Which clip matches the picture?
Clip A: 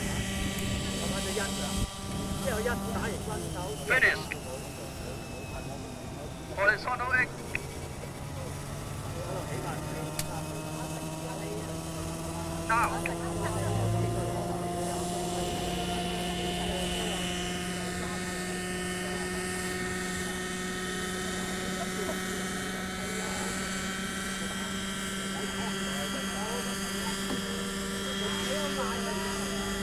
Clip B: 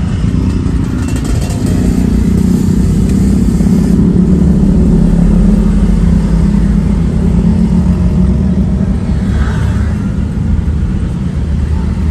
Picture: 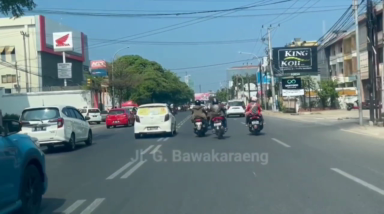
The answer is B